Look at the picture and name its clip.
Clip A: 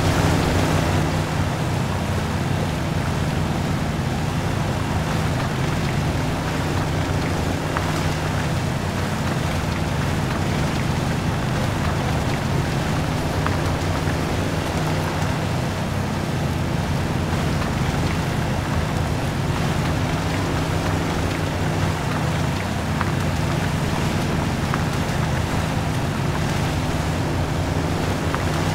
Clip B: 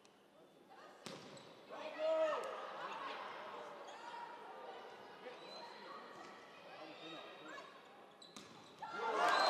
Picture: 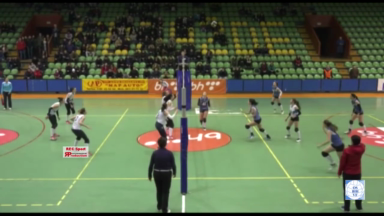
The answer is B